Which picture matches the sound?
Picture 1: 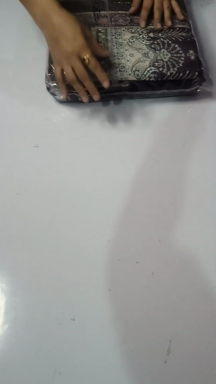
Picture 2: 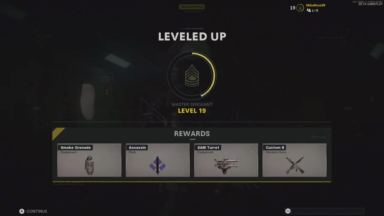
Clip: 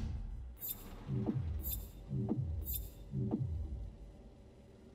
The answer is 2